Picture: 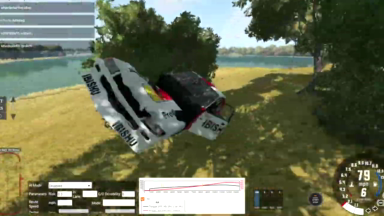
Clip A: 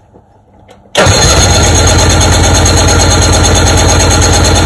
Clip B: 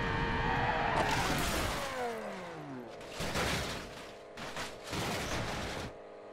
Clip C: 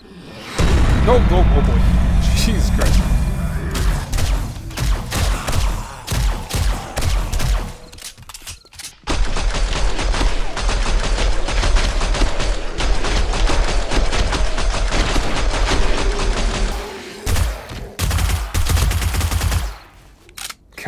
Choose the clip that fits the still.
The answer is B